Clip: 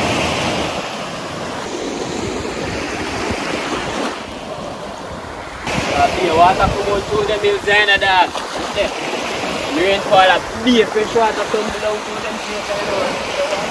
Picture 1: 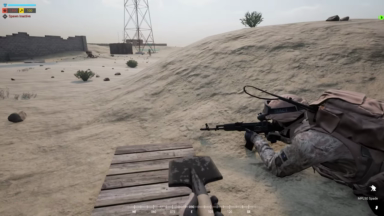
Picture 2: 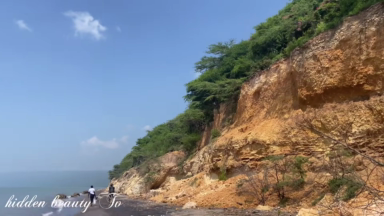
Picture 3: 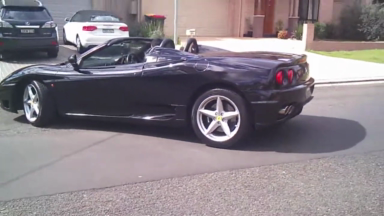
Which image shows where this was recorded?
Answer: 2